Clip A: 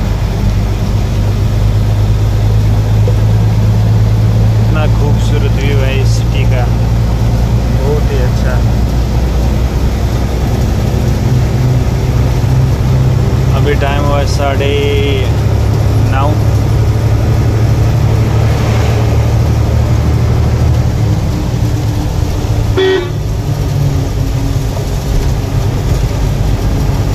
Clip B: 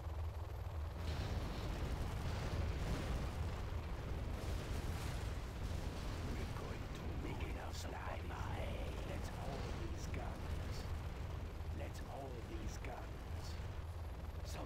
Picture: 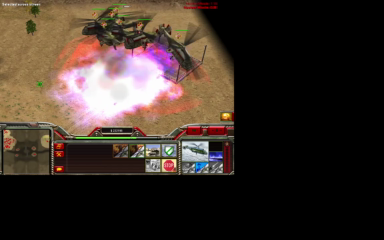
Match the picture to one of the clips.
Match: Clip B